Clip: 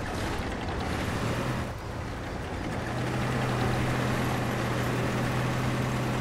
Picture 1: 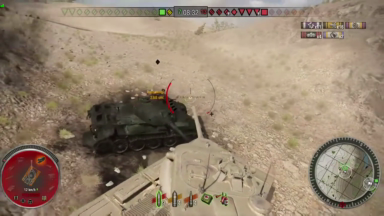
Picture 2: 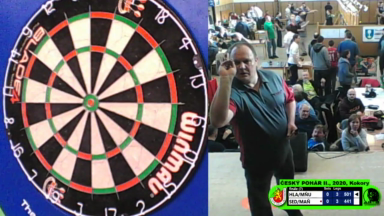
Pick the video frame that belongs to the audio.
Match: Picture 1